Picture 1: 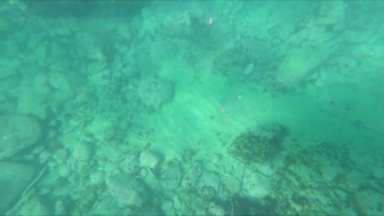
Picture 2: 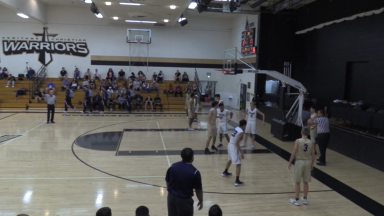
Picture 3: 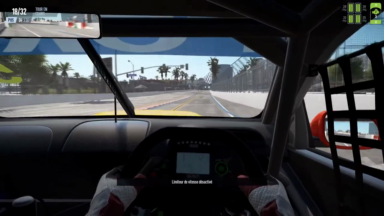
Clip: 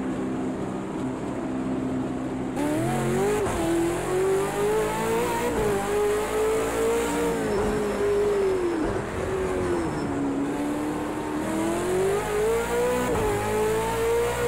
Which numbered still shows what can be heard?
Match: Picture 3